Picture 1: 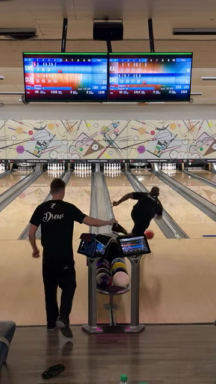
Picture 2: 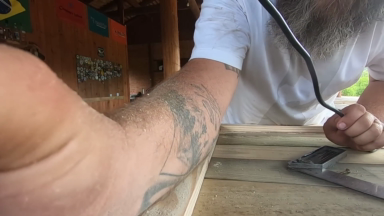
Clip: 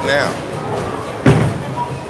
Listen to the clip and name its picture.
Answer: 1